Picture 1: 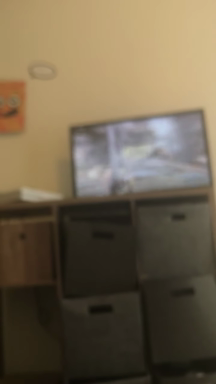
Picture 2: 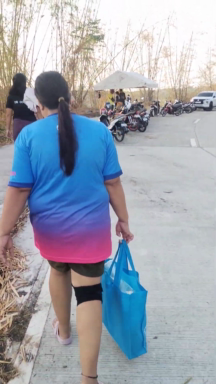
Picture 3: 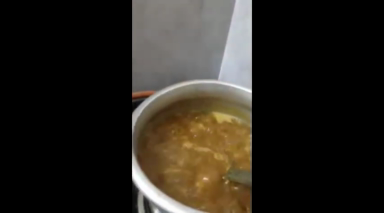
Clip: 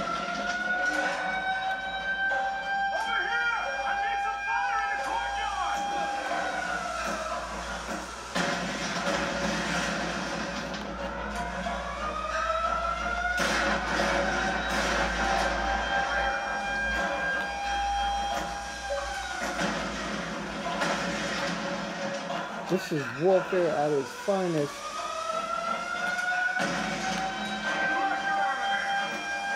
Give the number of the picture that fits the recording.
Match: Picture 1